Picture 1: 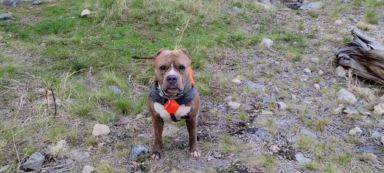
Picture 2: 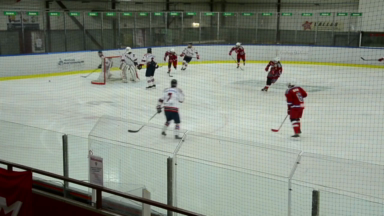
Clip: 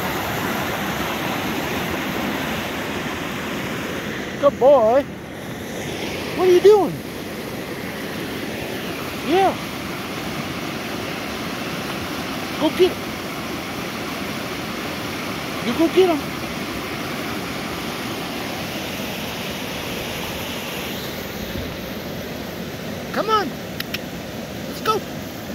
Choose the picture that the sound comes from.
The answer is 1